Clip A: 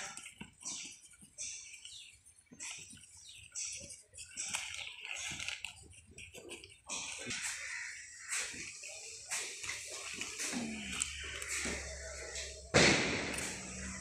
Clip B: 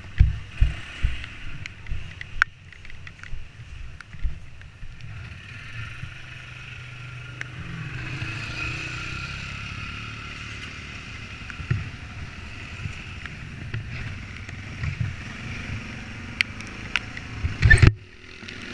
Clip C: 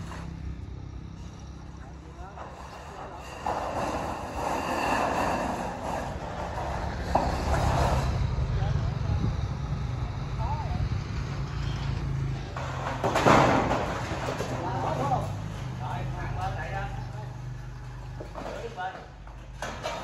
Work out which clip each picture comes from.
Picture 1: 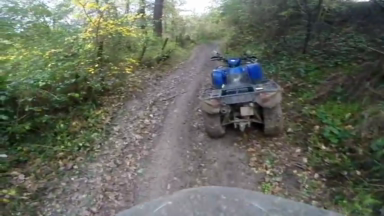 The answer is B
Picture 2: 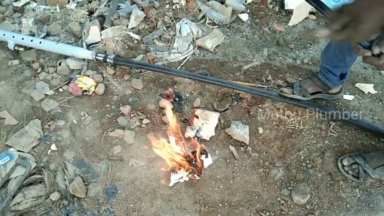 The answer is A